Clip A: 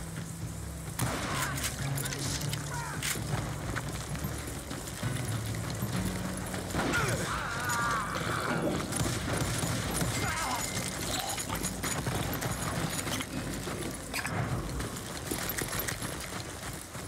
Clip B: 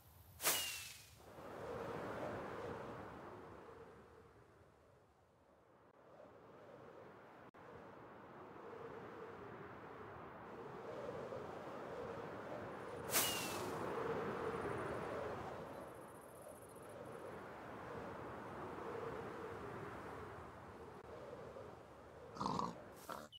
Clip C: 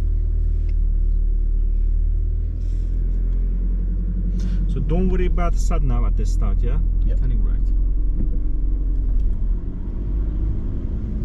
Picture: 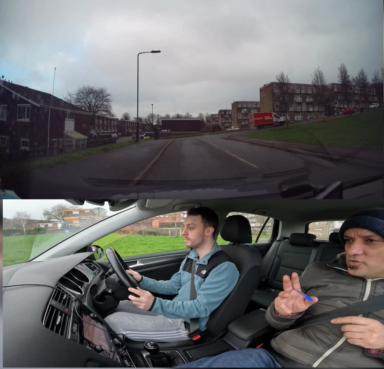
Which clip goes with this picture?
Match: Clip C